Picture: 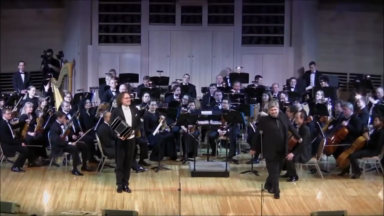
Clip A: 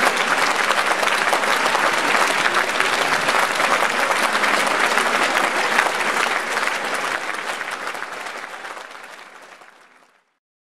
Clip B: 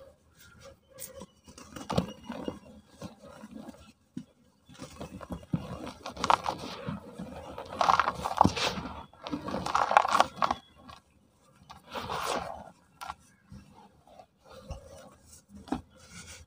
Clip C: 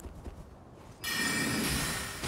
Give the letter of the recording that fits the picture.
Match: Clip A